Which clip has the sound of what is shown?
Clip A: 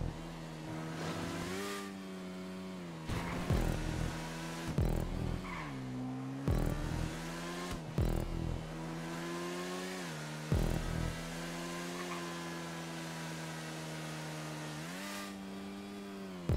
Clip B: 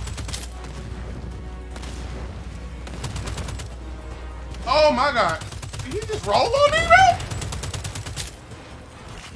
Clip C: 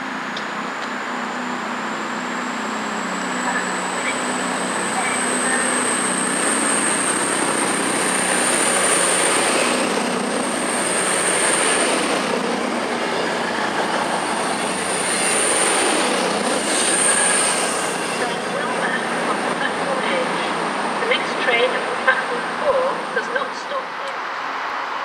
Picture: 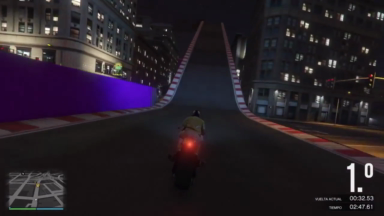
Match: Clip A